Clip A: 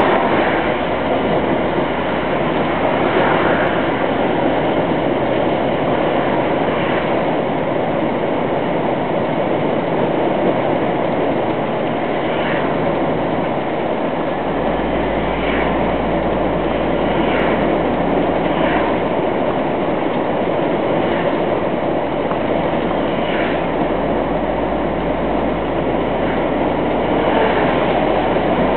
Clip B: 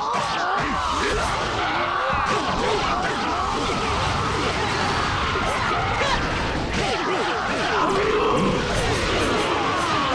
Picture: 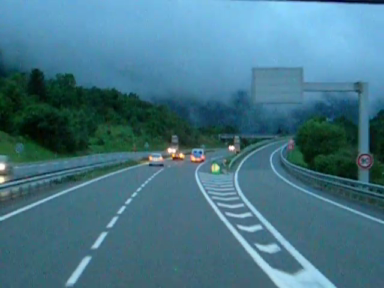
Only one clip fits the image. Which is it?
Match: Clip A